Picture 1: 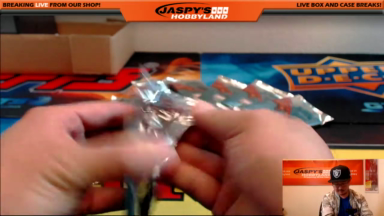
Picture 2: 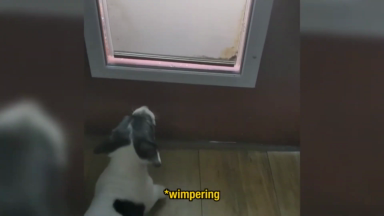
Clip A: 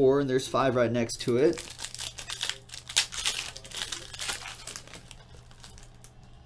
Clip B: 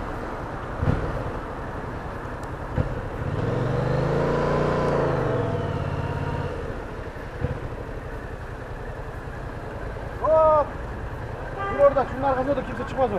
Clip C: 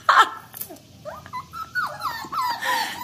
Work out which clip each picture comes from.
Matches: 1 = A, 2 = C